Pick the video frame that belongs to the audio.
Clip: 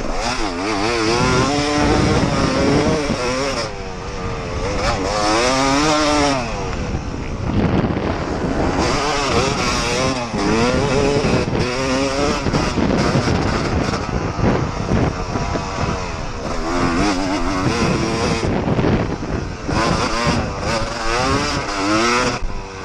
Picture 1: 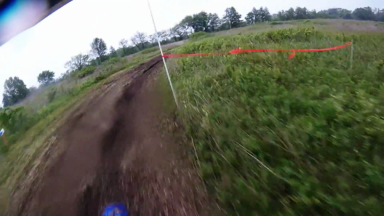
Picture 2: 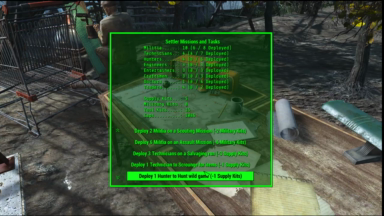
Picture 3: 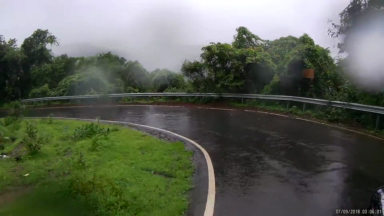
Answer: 1